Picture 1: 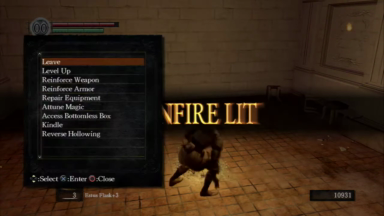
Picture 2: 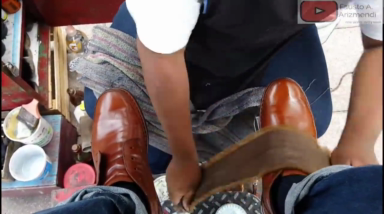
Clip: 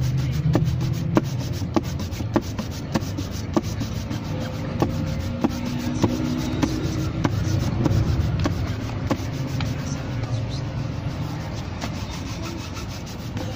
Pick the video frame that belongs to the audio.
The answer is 2